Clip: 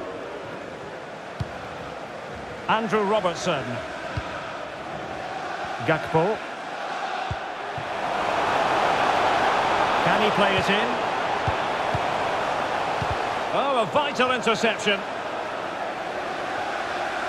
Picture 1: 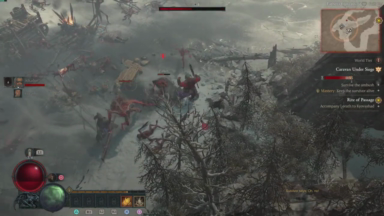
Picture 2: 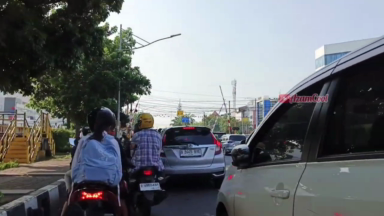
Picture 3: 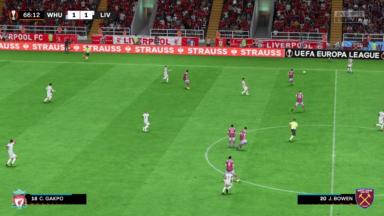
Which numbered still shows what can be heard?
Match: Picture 3